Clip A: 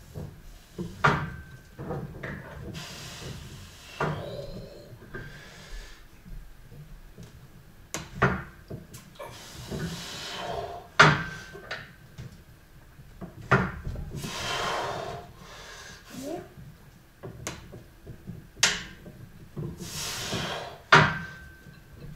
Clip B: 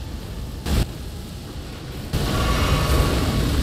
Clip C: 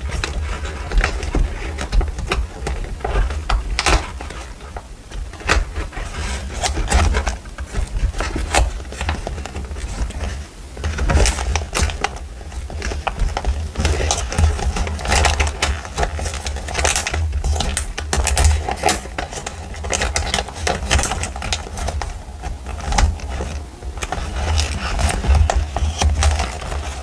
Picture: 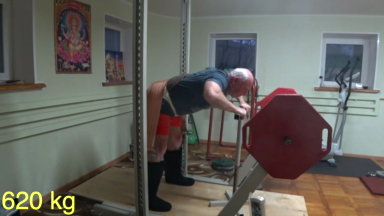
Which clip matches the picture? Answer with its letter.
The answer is A